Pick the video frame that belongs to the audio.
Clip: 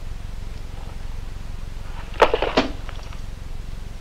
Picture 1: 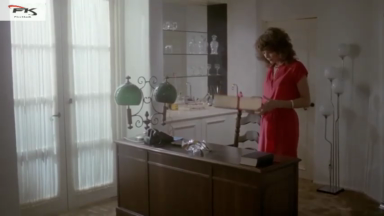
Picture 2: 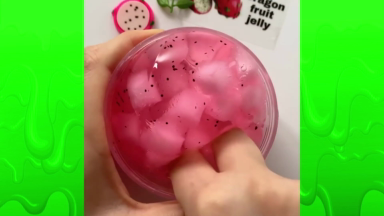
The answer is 1